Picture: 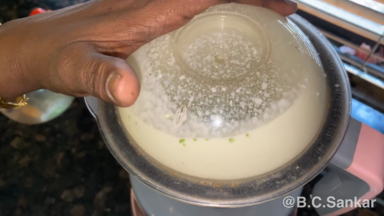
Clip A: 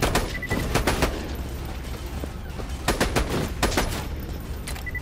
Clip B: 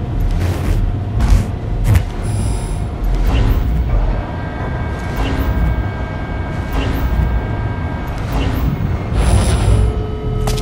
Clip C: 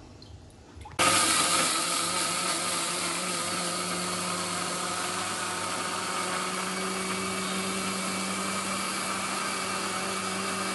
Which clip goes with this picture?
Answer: C